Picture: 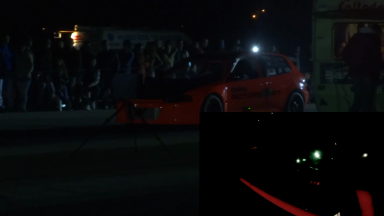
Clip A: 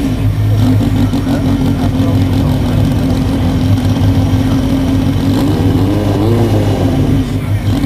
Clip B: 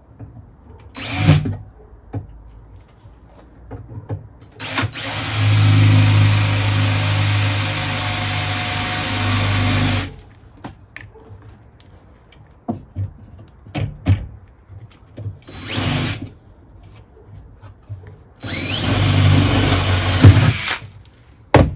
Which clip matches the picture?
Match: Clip A